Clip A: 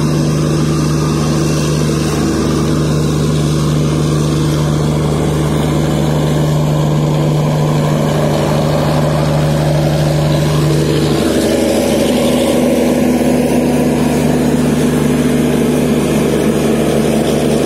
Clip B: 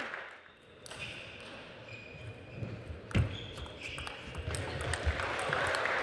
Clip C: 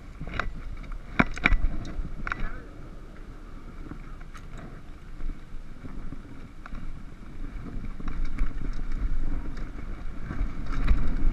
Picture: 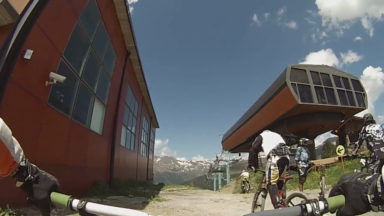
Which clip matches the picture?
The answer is C